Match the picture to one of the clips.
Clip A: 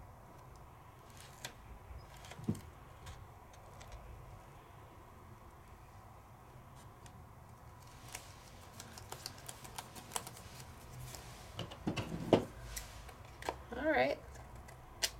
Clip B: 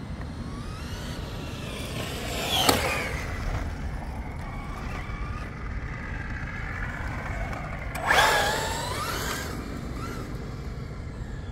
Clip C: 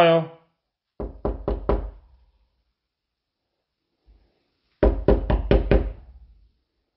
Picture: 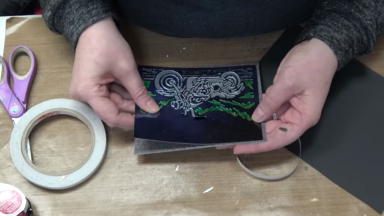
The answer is A